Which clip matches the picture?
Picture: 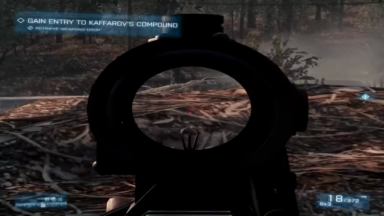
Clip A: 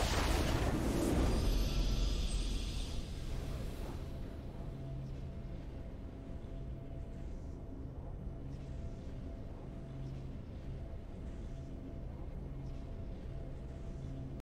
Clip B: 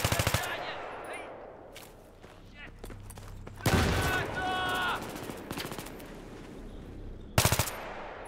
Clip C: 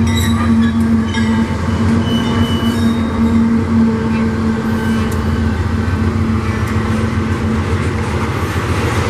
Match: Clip B